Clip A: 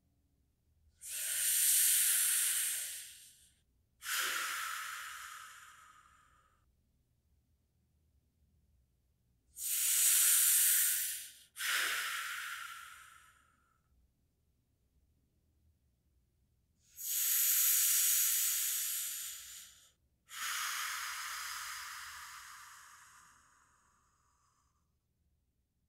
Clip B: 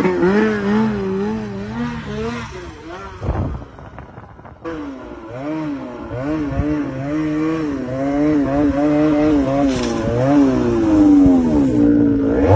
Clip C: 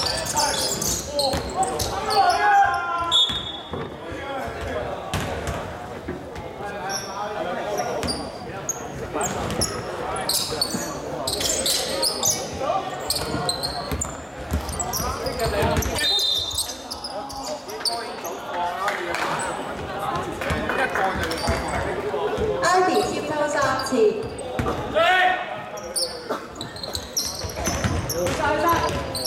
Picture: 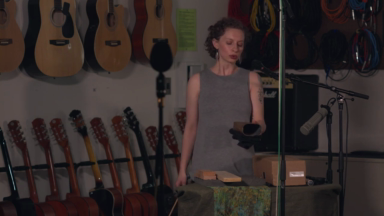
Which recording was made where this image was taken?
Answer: A